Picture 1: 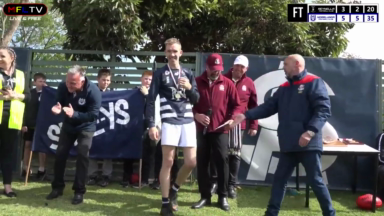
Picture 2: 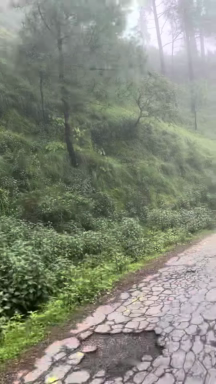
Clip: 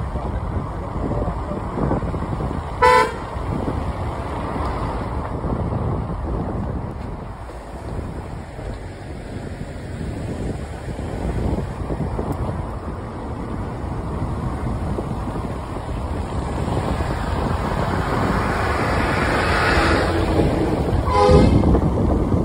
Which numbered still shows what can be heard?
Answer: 2